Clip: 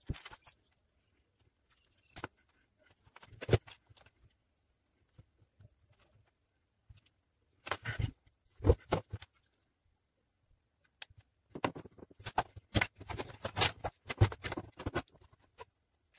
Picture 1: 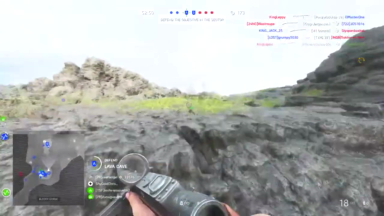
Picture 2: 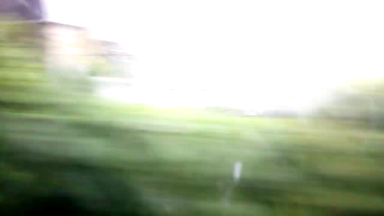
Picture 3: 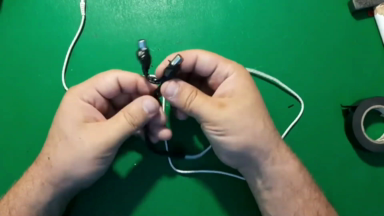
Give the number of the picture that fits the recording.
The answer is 3